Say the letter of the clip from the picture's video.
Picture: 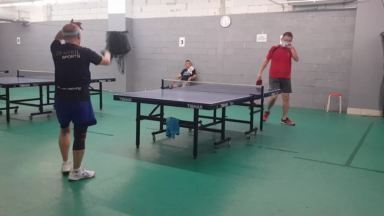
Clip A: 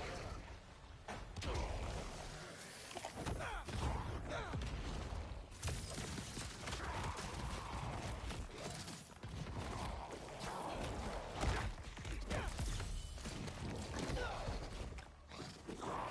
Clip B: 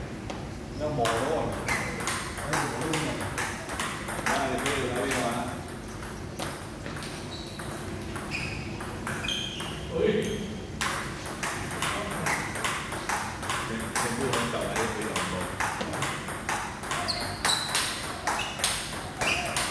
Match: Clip B